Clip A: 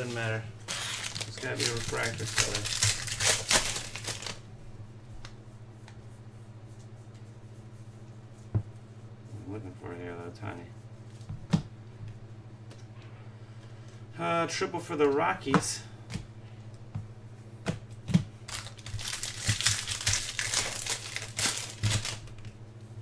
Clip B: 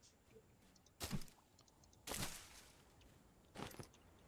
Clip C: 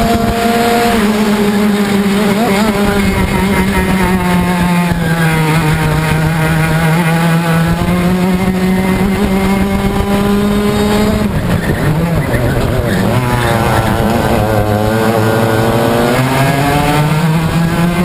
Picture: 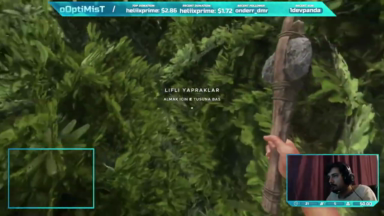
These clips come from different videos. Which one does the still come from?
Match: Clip B